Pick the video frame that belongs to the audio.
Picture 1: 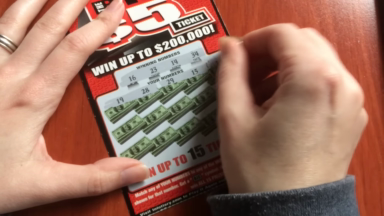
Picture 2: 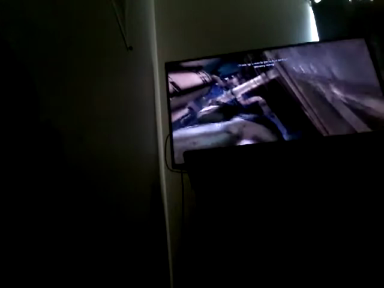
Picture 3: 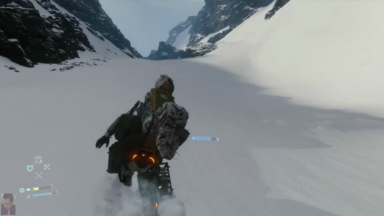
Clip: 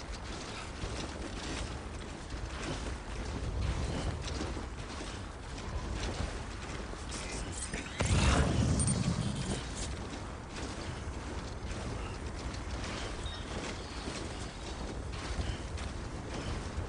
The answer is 3